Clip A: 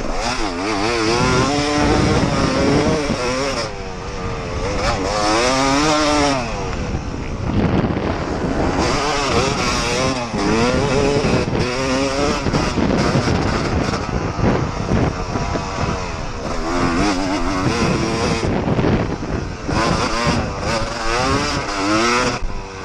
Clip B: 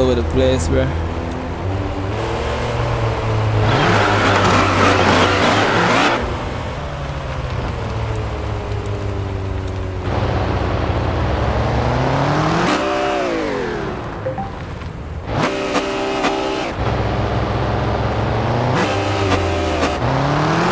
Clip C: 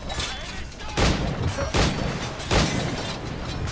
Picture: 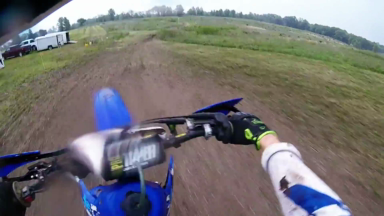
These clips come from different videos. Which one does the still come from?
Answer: A